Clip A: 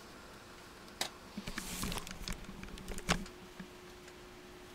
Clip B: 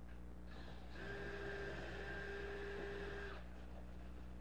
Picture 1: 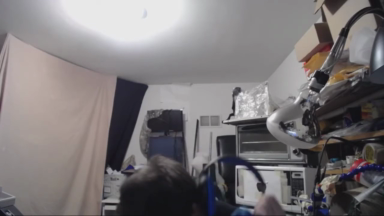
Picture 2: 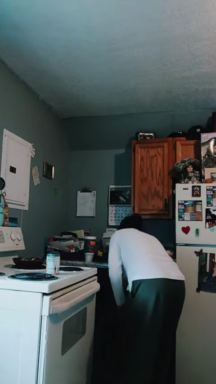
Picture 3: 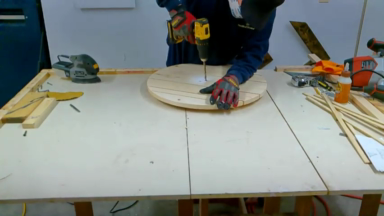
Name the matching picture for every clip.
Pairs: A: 1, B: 3